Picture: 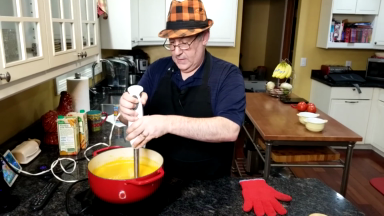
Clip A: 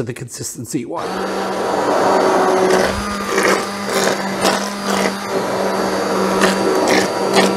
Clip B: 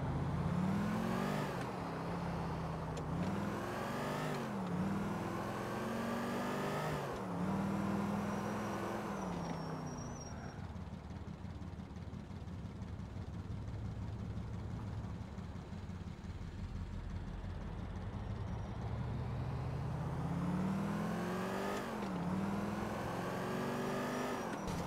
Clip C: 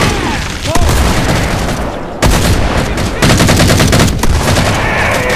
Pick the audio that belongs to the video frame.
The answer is A